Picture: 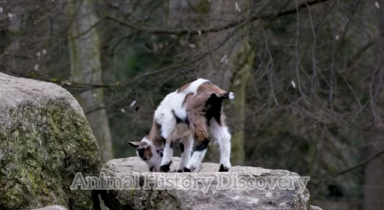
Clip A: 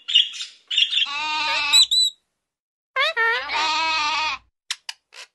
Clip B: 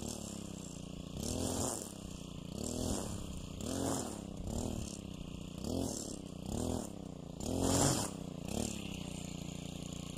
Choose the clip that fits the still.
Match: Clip A